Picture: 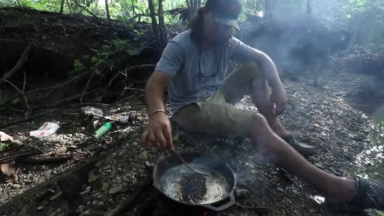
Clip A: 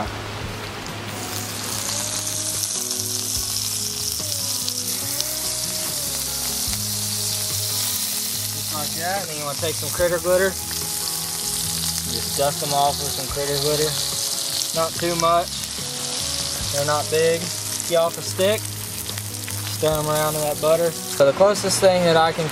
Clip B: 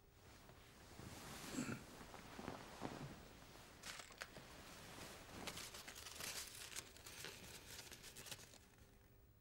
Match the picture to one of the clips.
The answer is A